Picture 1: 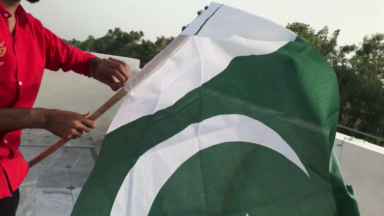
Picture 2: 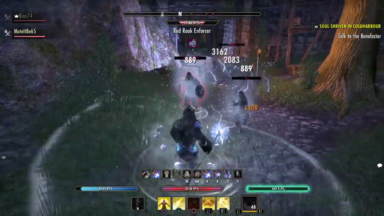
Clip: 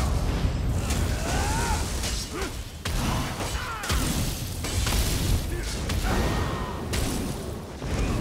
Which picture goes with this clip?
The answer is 2